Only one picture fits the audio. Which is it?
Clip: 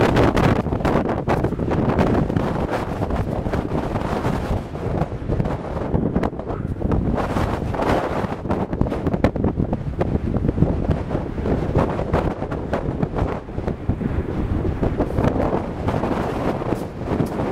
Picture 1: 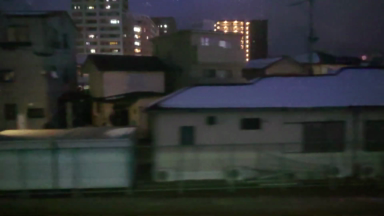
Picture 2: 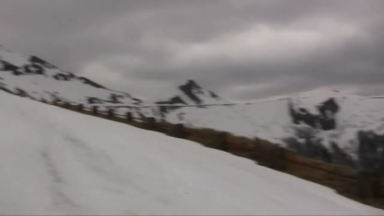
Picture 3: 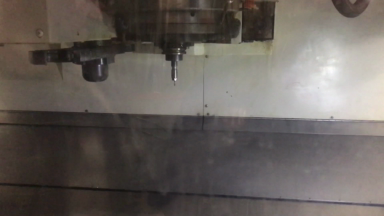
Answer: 2